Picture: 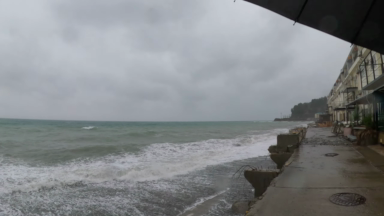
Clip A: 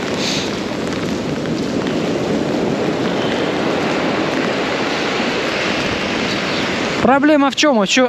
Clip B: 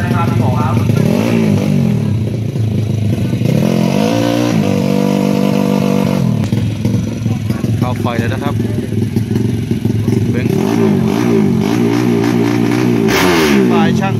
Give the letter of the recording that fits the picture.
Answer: A